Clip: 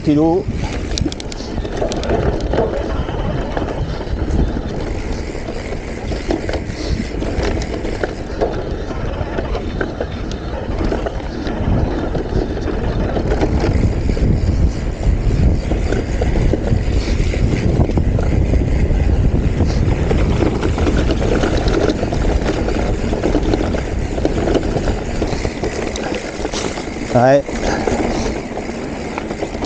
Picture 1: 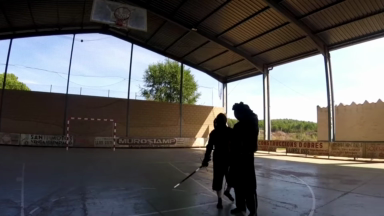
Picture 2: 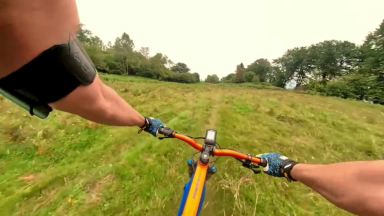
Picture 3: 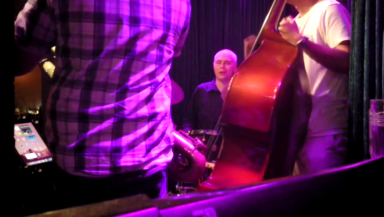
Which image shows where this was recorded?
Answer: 2